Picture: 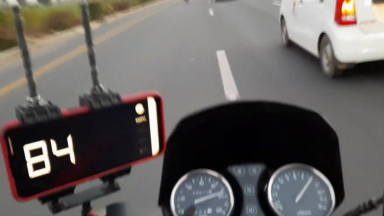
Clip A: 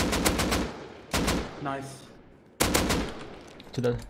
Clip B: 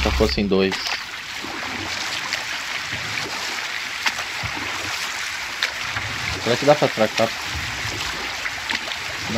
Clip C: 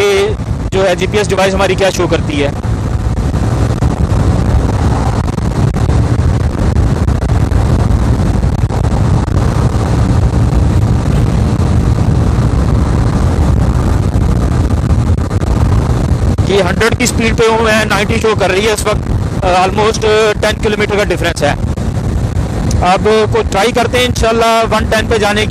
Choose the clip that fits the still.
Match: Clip C